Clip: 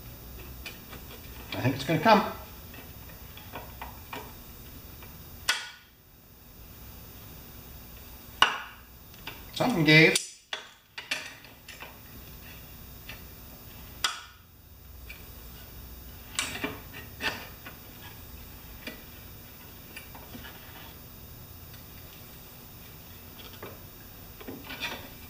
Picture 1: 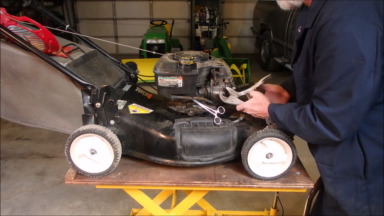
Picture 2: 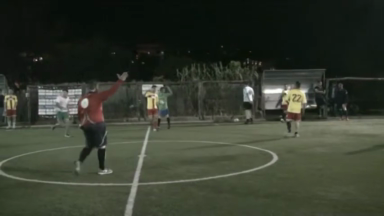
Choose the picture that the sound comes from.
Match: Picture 1